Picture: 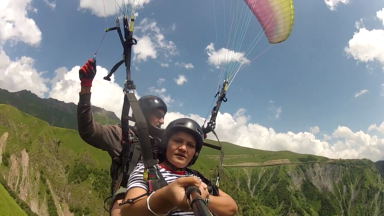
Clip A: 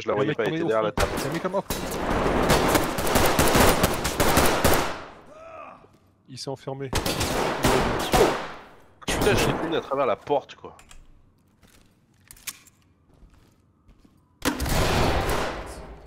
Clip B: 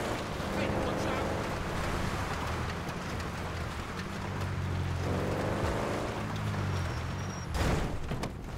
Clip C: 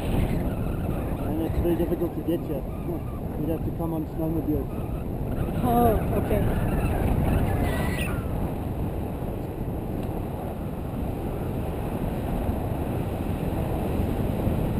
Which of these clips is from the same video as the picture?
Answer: C